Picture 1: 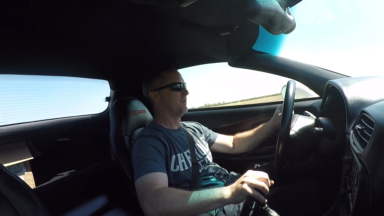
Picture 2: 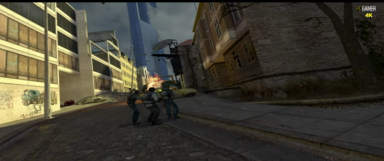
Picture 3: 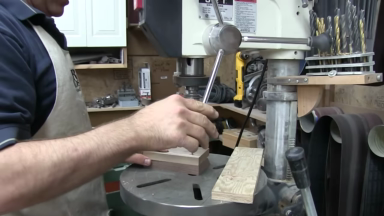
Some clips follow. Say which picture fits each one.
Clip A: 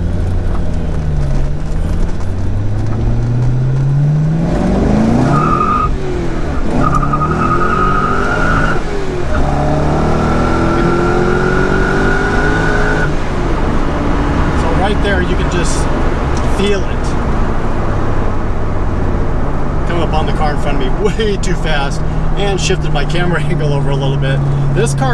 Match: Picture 1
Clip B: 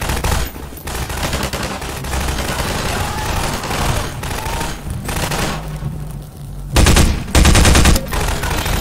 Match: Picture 2